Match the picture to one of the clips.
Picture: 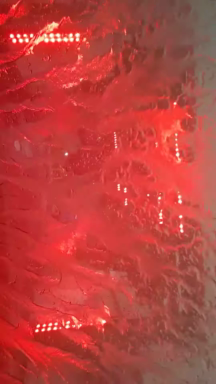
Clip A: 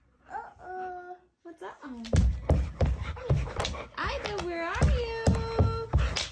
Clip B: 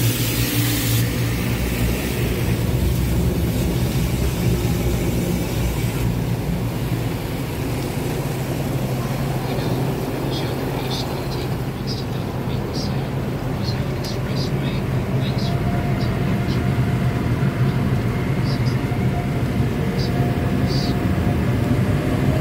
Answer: B